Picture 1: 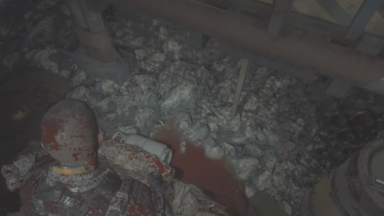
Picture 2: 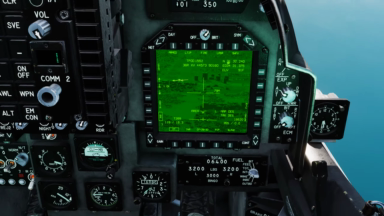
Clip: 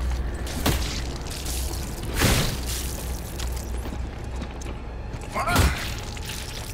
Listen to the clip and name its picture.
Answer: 1